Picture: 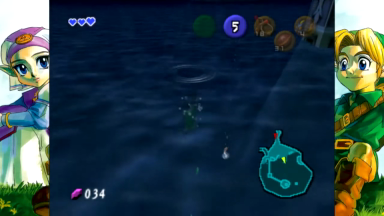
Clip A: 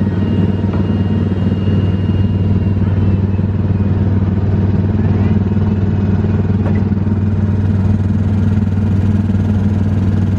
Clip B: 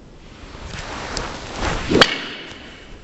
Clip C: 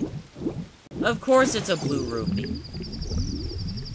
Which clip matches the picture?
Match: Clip C